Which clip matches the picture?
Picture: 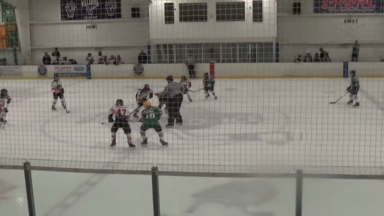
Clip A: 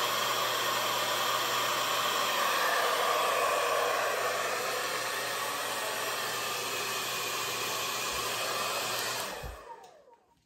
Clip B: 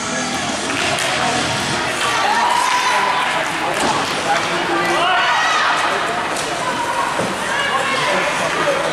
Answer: B